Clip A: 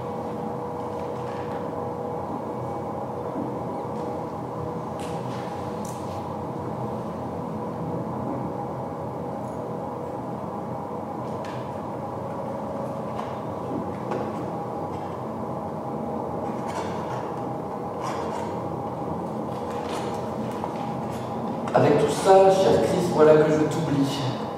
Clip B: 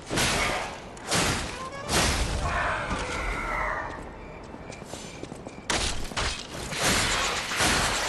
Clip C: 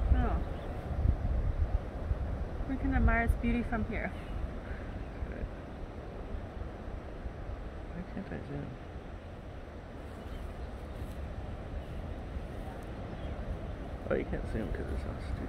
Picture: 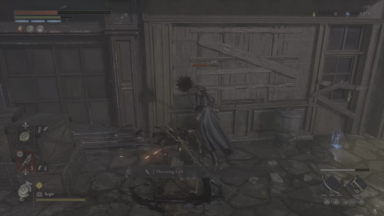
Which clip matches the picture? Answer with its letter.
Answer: B